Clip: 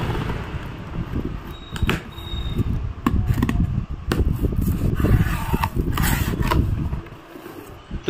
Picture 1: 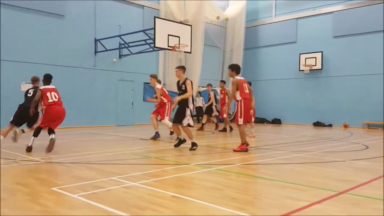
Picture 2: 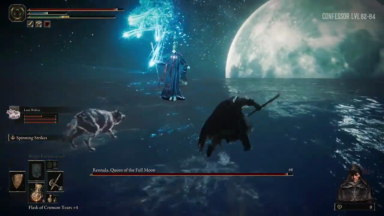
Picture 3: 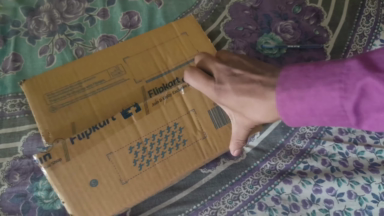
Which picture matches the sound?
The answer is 3